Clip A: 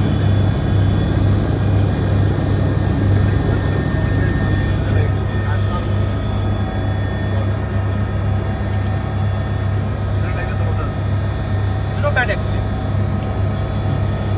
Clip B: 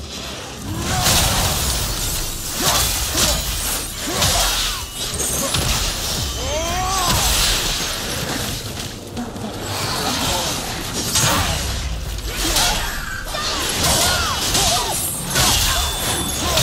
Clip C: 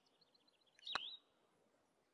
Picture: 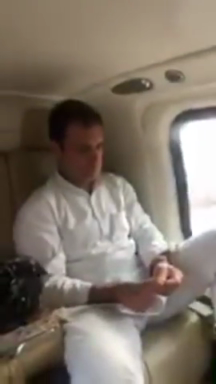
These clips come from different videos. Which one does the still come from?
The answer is A